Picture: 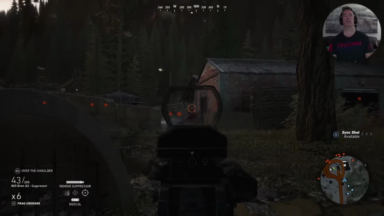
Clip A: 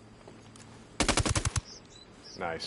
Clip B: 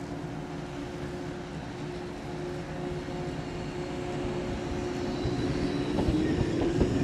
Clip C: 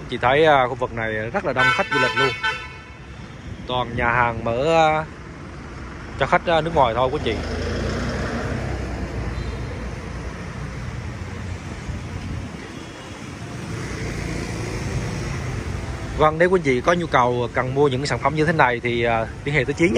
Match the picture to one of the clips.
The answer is A